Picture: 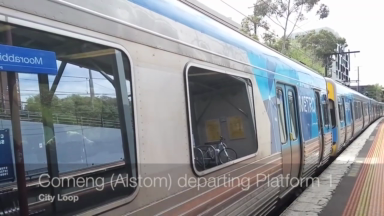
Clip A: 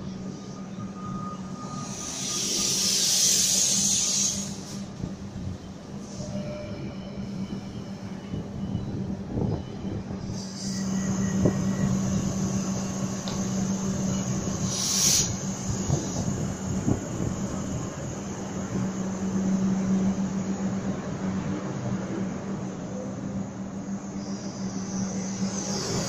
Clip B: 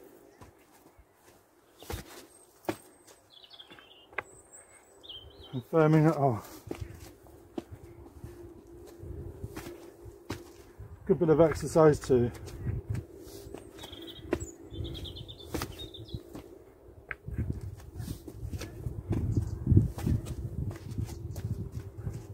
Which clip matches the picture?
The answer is A